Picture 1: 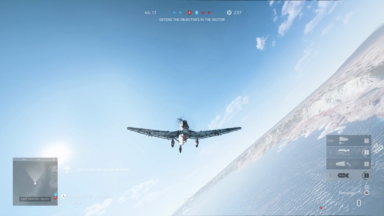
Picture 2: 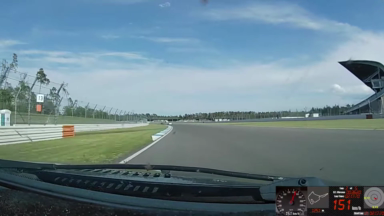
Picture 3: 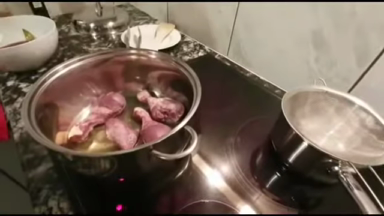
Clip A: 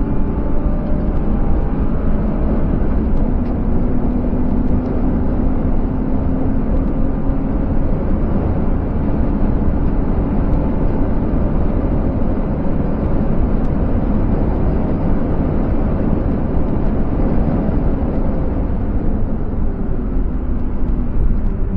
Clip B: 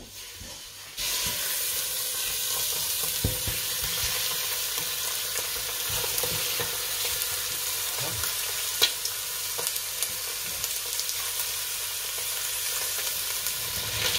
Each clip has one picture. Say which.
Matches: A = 2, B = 3